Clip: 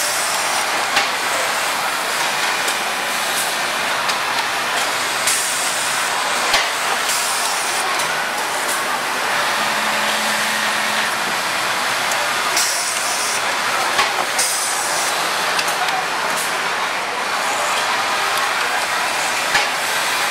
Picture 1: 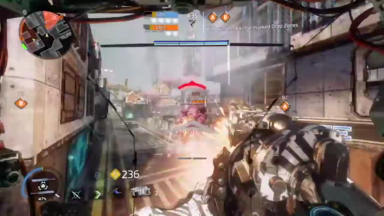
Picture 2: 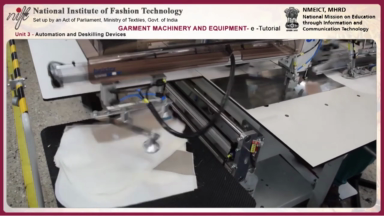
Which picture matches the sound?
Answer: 2